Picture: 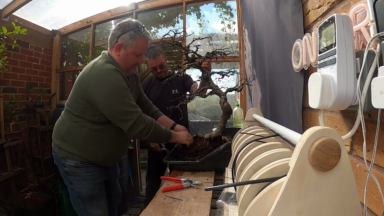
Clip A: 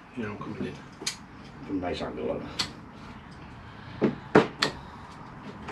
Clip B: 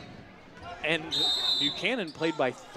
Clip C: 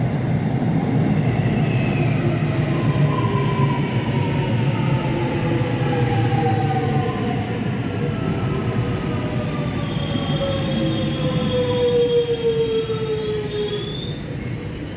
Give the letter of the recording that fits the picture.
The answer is A